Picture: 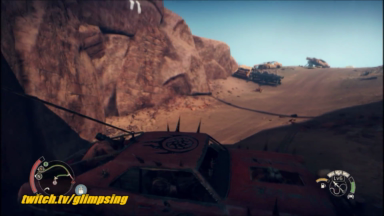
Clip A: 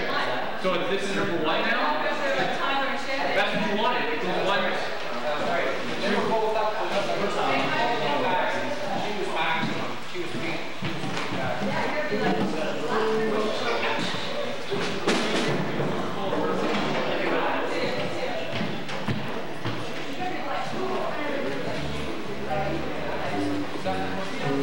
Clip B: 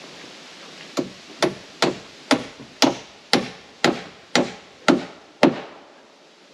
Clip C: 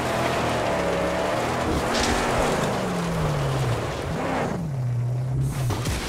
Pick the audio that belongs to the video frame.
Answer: C